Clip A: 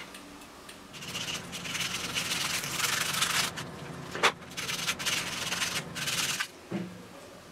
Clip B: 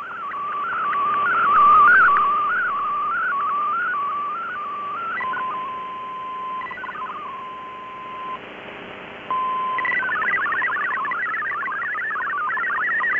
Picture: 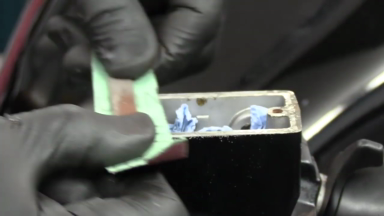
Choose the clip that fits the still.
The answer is A